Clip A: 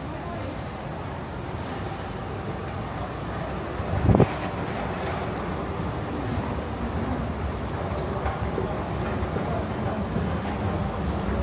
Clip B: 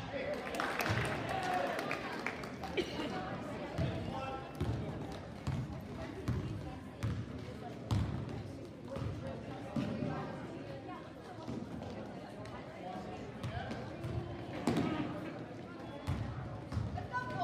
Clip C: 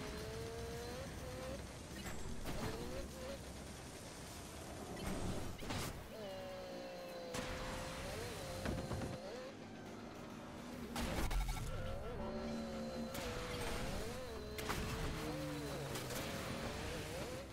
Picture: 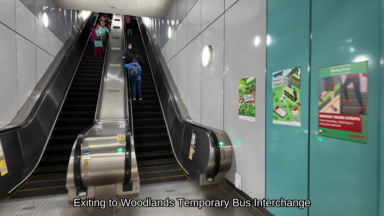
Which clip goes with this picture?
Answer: A